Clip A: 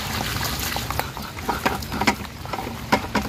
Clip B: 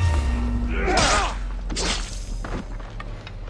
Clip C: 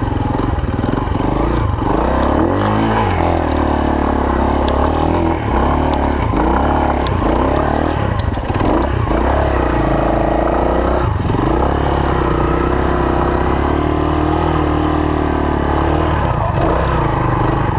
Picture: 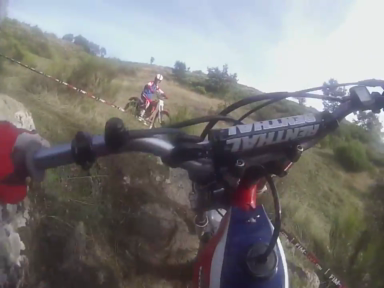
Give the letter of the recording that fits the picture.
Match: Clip C